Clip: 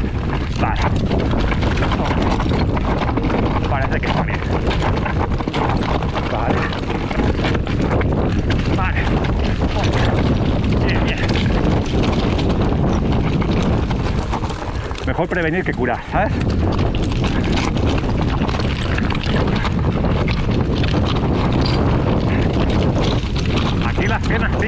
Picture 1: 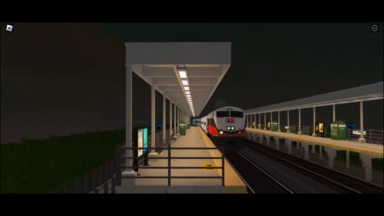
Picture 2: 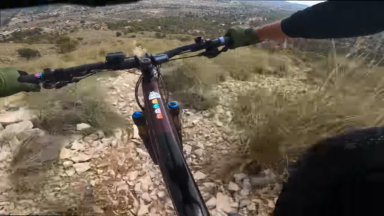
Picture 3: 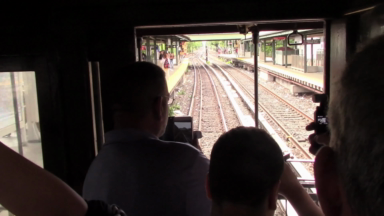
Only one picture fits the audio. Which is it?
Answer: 2